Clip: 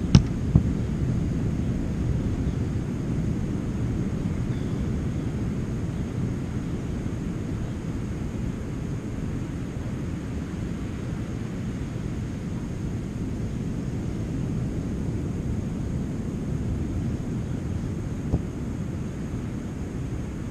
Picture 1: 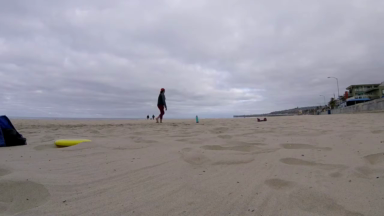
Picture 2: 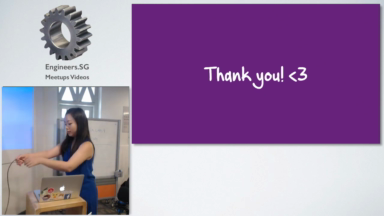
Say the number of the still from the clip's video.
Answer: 1